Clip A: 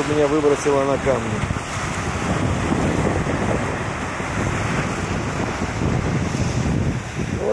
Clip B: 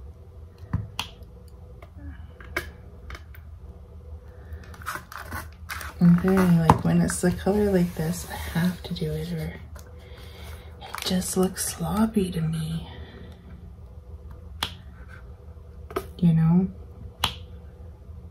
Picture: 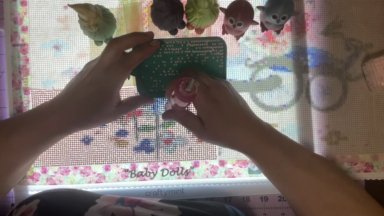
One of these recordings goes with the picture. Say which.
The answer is B